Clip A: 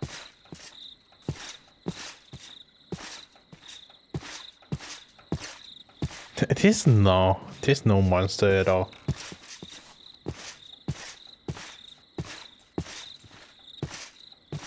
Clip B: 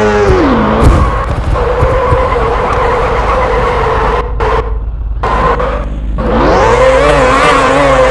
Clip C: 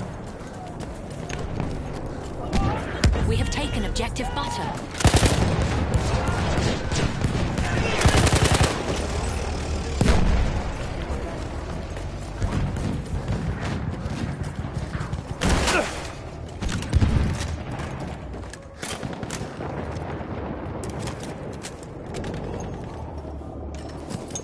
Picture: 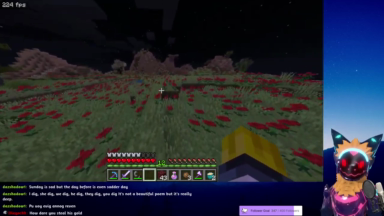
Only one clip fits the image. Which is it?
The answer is A